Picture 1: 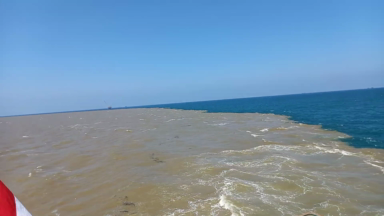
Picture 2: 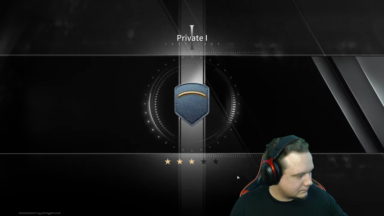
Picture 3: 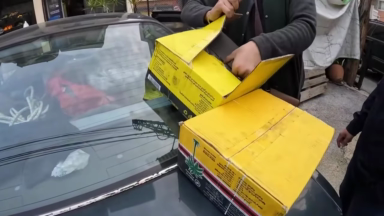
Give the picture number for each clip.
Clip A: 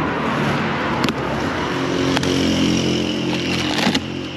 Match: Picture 3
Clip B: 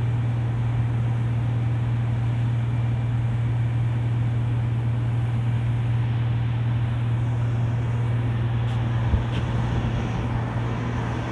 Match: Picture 1